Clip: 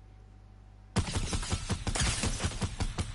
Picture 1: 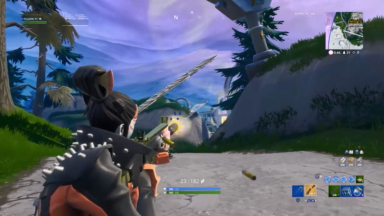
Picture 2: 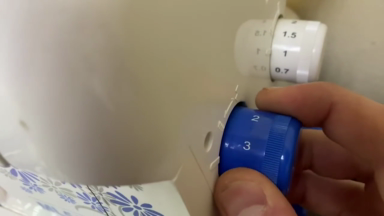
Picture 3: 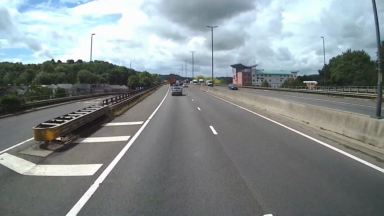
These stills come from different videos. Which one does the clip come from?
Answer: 1